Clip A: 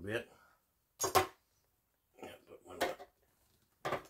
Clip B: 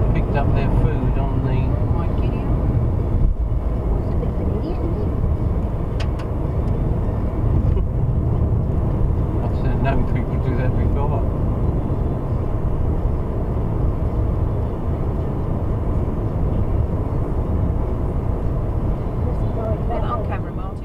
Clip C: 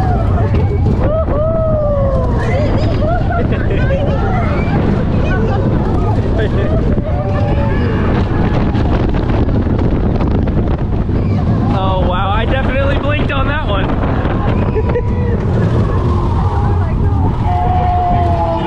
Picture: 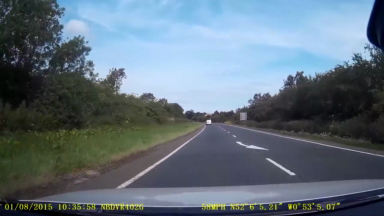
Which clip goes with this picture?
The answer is B